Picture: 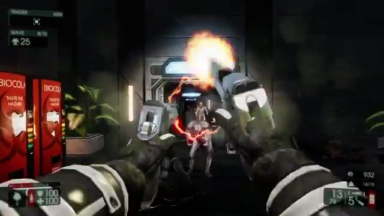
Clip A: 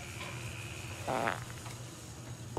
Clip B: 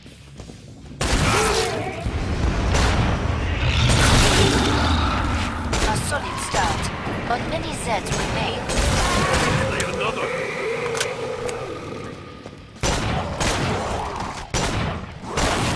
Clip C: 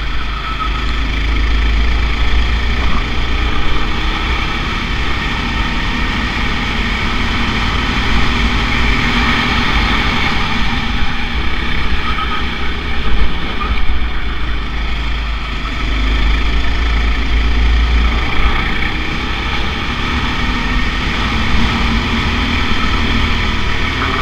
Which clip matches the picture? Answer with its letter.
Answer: B